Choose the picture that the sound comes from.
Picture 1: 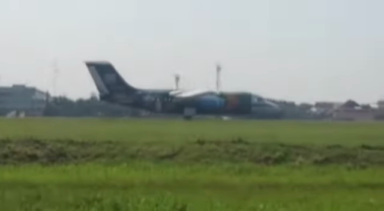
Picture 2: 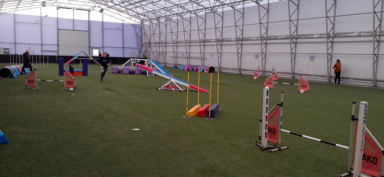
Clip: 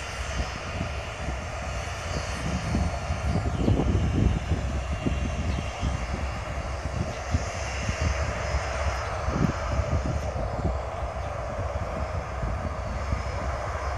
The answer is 1